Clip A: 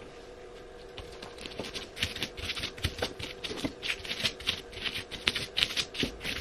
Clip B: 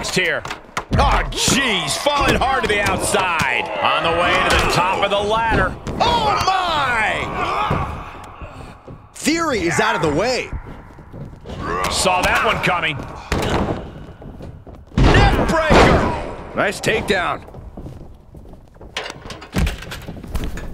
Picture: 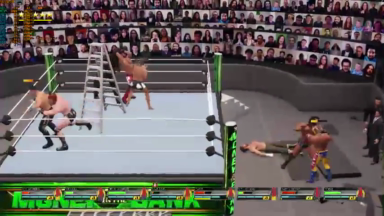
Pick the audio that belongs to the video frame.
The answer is B